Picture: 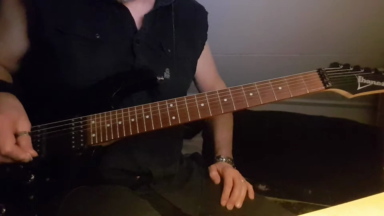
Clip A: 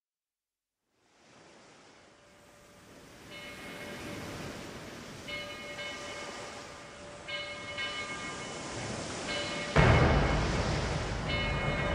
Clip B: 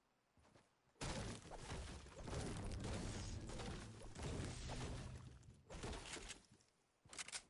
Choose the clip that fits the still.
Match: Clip A